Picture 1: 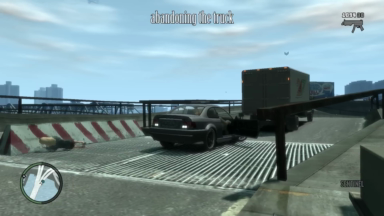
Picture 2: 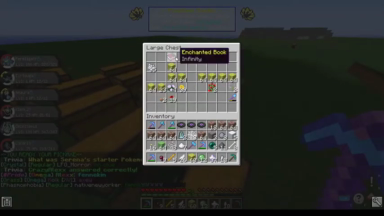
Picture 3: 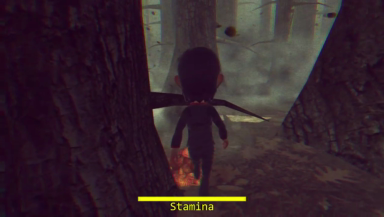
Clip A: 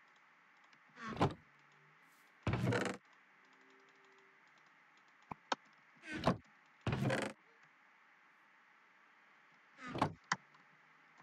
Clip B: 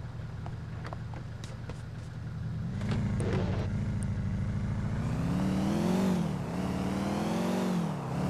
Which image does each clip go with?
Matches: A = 2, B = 1